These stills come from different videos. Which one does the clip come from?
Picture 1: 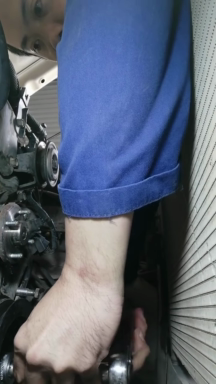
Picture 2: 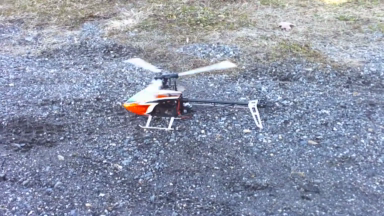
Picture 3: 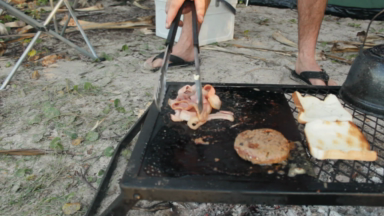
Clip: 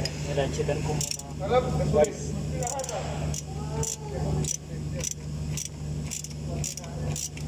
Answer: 1